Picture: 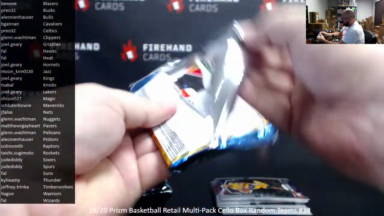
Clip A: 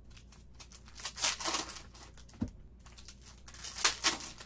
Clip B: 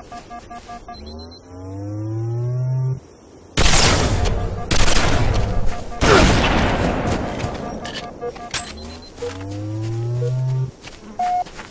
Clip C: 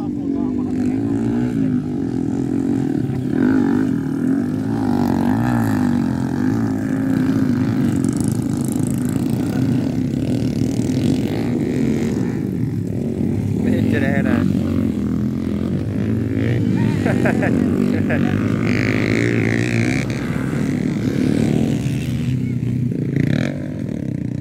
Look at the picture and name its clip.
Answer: A